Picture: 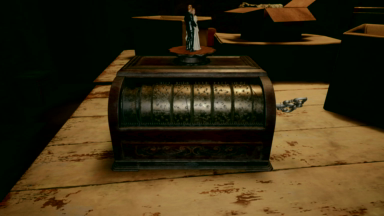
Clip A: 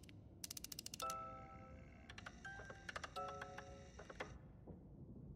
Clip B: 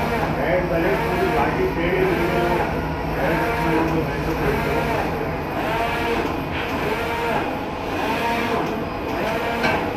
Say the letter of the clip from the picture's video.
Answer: A